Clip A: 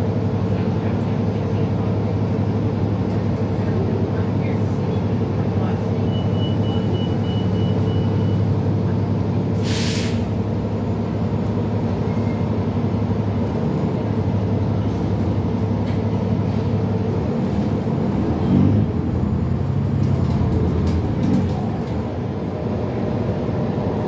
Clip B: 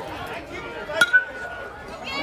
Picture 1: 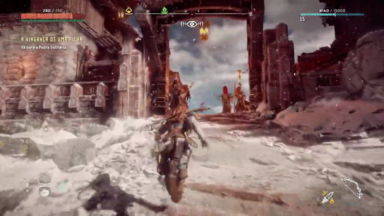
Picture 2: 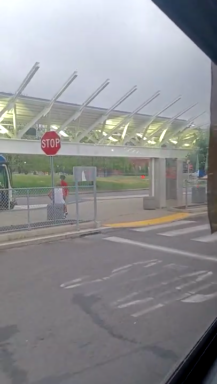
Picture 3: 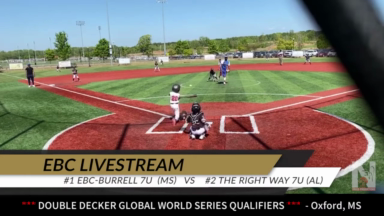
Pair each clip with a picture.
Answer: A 2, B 3